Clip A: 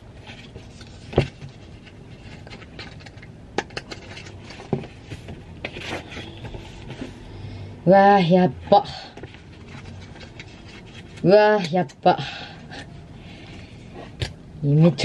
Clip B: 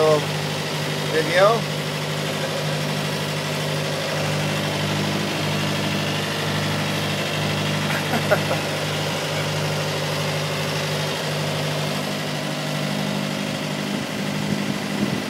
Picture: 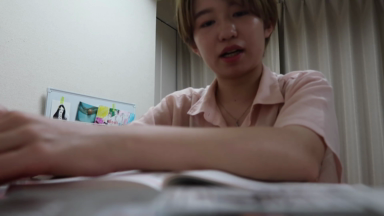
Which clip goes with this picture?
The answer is A